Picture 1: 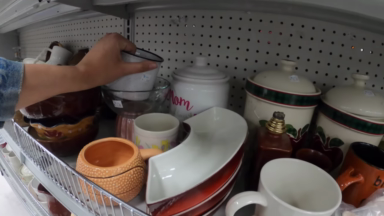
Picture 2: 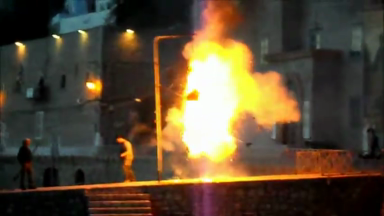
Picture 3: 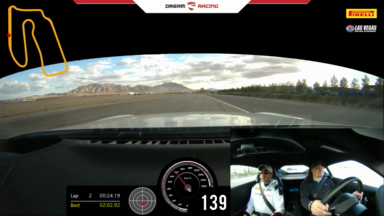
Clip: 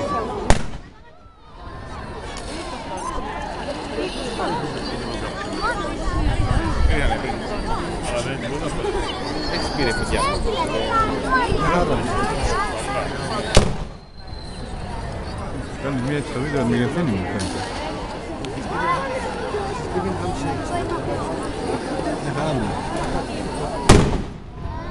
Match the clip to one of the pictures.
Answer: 2